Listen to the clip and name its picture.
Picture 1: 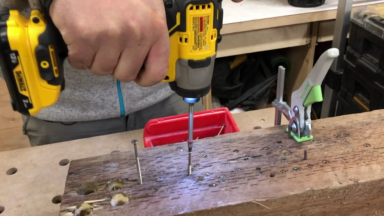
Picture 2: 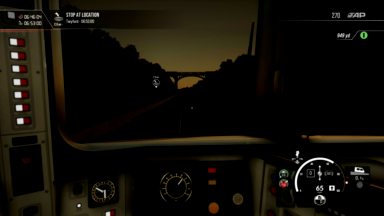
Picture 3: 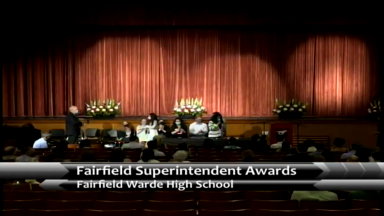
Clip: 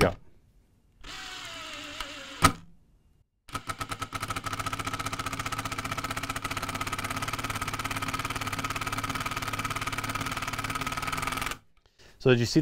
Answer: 1